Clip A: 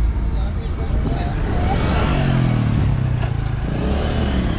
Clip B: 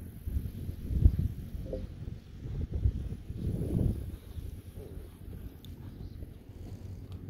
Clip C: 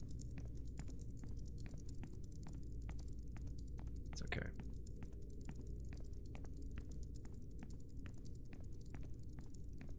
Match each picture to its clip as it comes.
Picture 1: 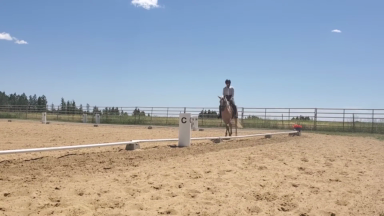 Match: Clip B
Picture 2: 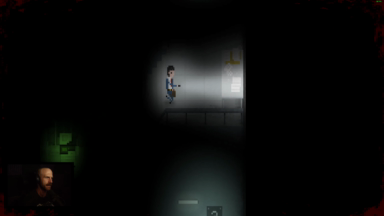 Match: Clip C